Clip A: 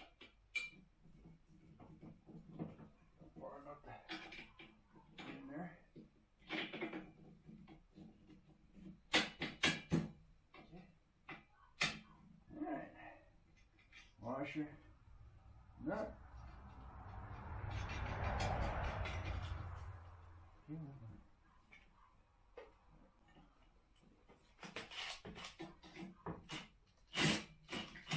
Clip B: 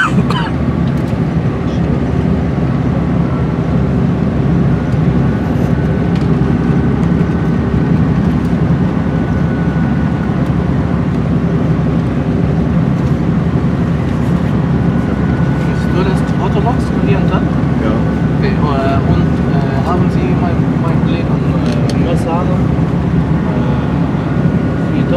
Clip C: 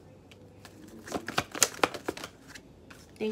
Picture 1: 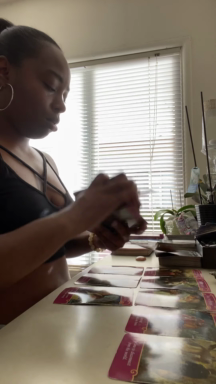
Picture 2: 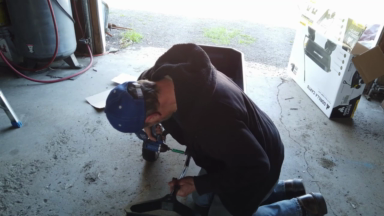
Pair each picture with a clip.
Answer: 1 C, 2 A